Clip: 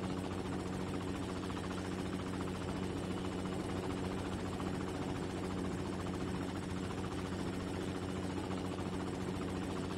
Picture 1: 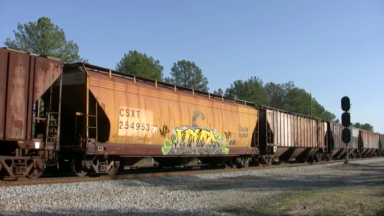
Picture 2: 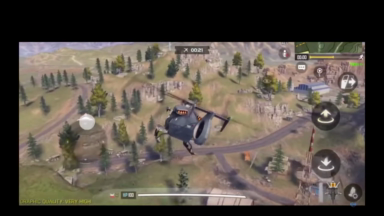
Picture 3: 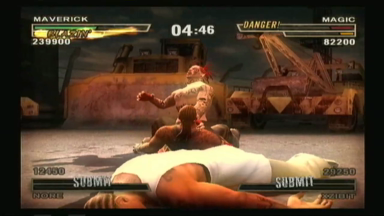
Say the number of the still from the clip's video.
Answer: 2